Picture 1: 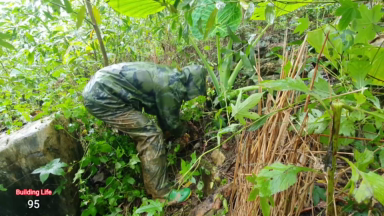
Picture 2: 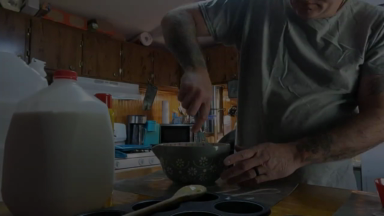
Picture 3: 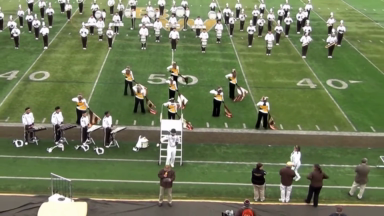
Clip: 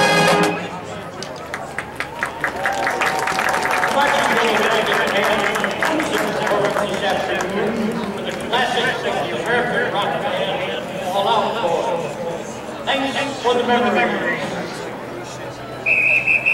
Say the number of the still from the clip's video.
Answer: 3